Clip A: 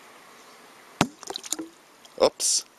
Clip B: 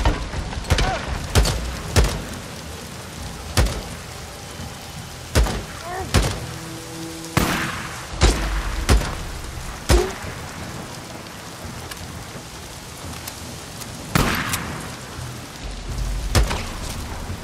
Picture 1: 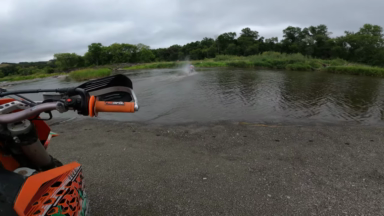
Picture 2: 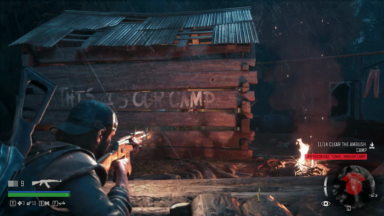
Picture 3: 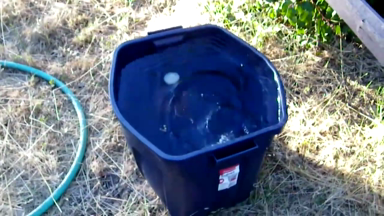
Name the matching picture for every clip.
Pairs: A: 3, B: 2